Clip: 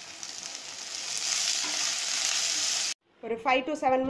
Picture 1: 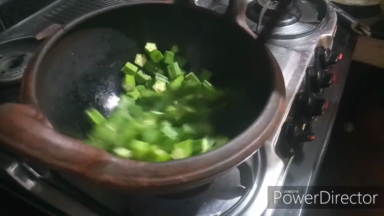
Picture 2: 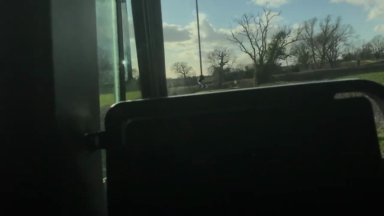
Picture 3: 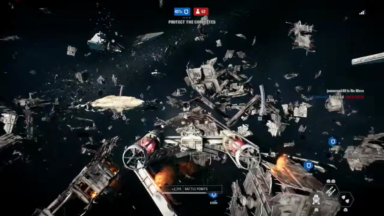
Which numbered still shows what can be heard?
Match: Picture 1